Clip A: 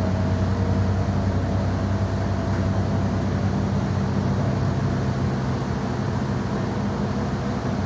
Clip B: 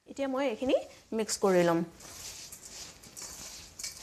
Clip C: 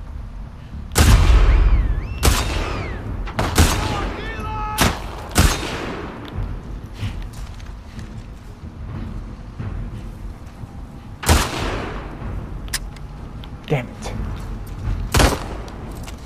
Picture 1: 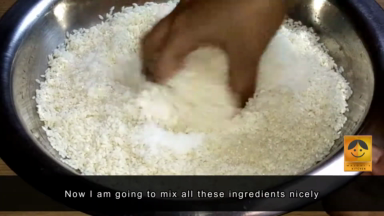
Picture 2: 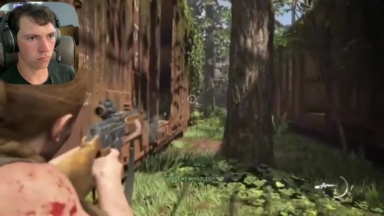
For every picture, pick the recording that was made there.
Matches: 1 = B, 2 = C